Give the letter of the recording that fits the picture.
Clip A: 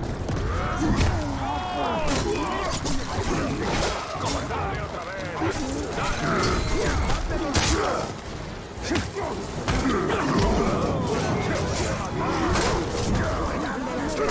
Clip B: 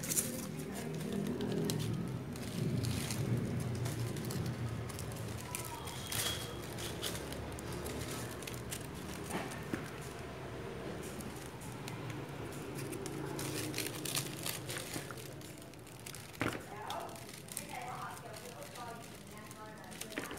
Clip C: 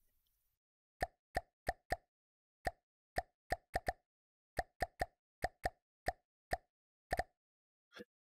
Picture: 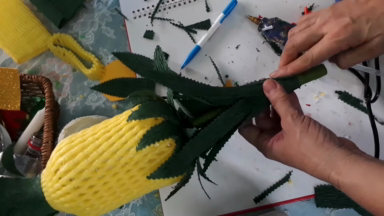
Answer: B